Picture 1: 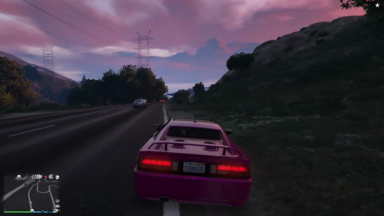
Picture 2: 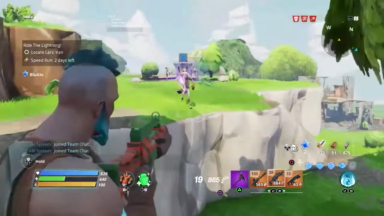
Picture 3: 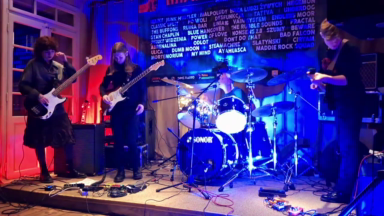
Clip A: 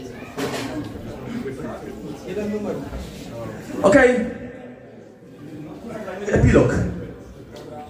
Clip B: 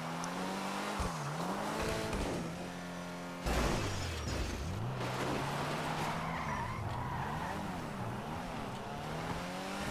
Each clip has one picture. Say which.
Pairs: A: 3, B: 1